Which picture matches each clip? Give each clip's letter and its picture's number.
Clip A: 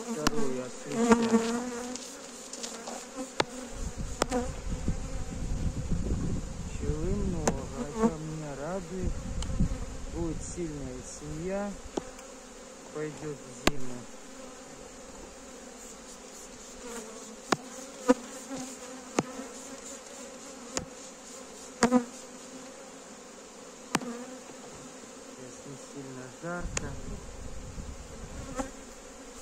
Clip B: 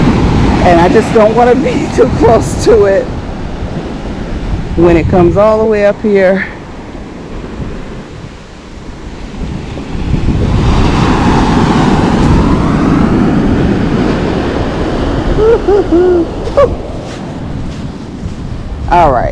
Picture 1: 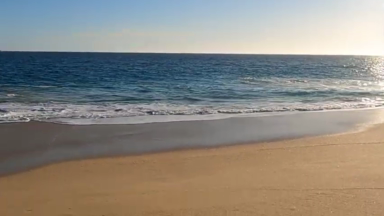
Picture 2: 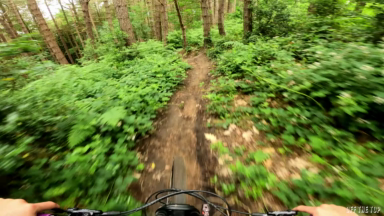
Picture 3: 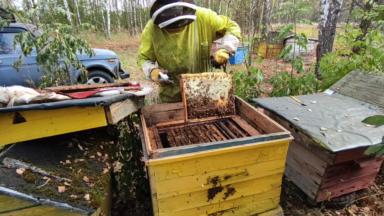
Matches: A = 3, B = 1